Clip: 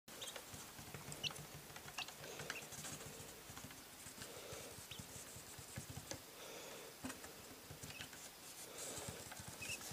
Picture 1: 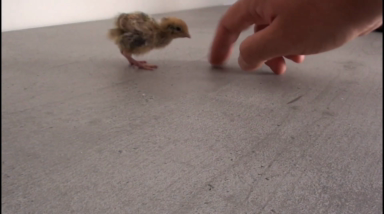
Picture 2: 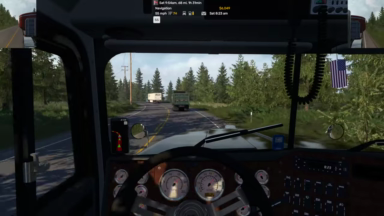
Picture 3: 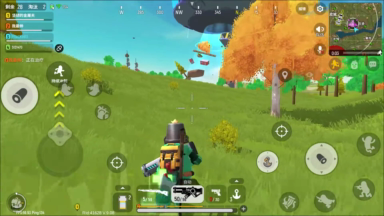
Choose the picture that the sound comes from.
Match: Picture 1